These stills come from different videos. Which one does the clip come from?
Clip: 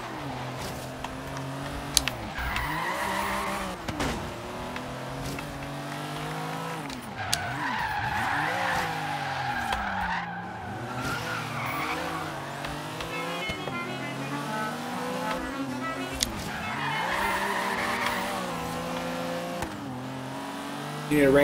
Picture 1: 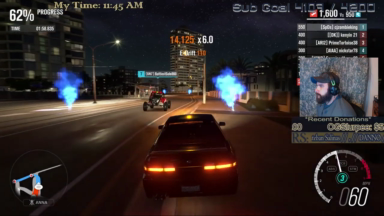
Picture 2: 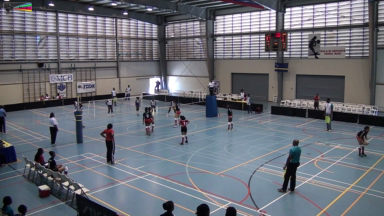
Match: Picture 1